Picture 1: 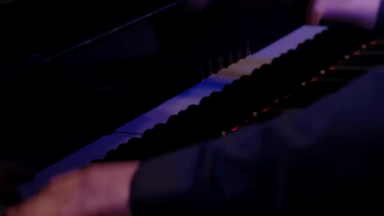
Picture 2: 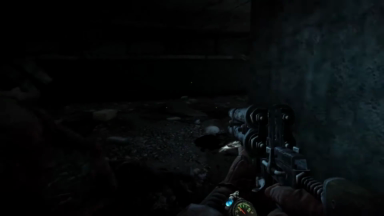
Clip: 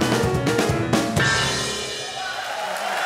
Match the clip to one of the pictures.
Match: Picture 1